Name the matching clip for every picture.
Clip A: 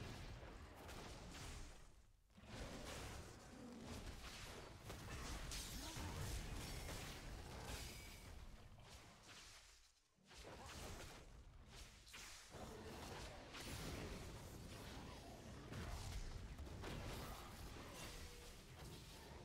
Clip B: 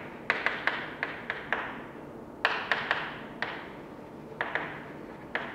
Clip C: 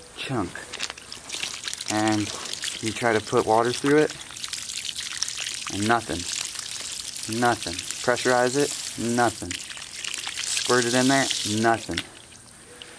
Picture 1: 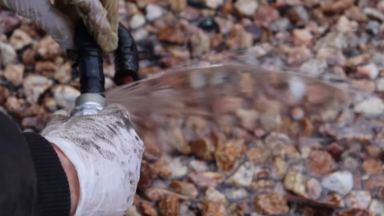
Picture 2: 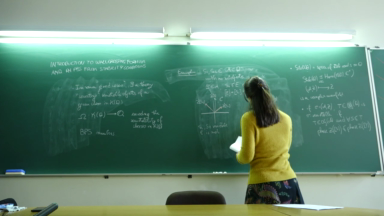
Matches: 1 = C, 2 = B